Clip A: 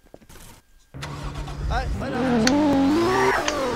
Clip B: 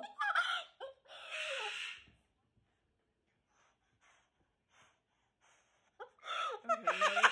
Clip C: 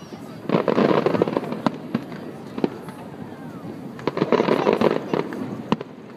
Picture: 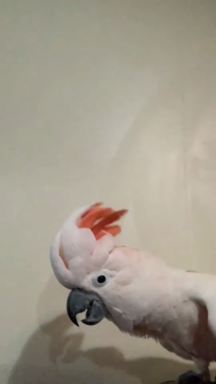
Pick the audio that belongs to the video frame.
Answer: B